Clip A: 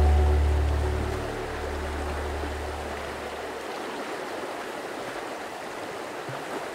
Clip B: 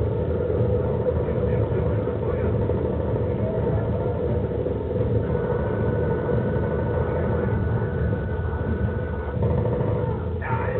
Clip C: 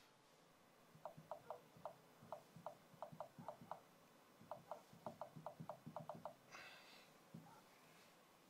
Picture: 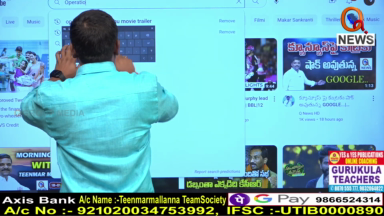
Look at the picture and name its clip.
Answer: C